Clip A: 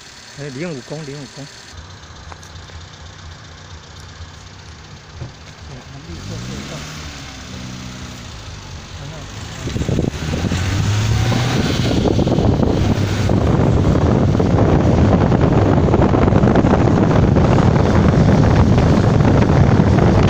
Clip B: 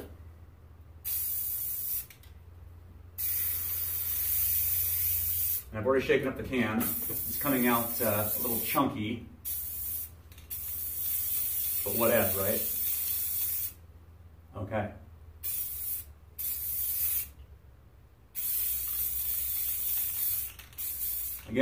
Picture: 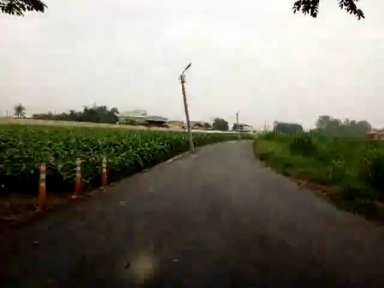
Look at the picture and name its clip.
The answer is A